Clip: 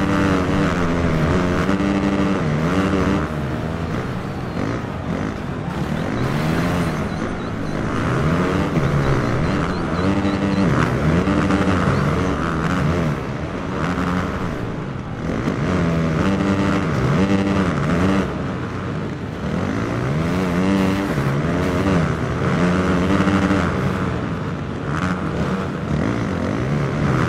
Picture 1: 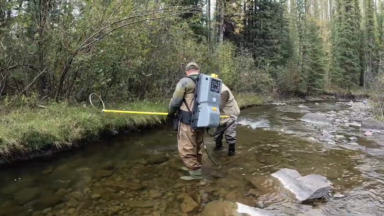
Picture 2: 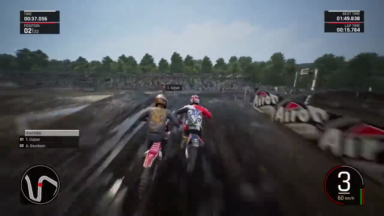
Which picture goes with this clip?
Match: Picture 2